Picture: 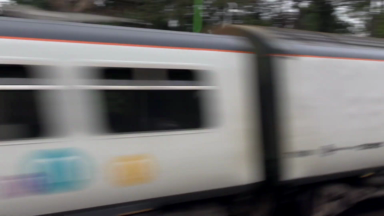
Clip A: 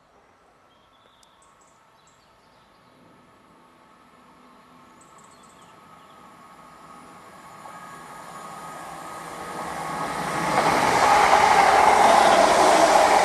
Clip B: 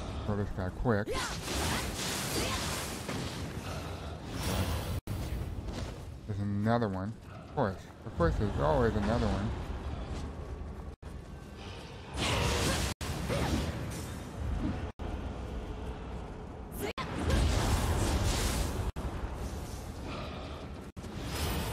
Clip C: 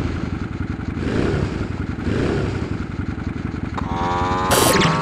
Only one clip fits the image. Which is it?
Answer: A